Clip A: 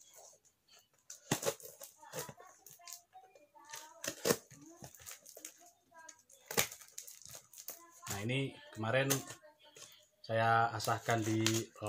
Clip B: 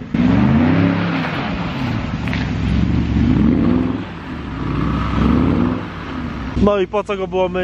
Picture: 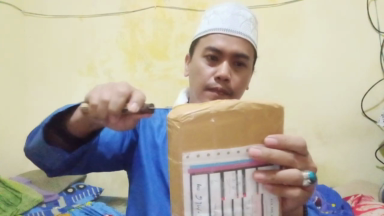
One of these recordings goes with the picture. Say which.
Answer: A